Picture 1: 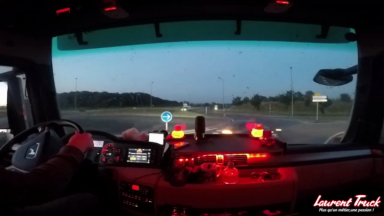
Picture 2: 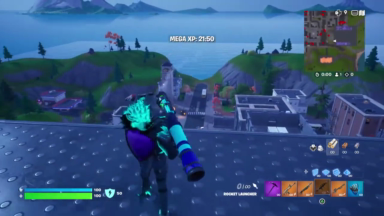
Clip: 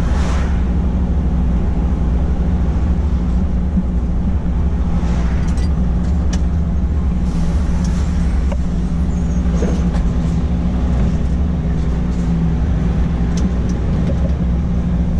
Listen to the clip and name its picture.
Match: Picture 1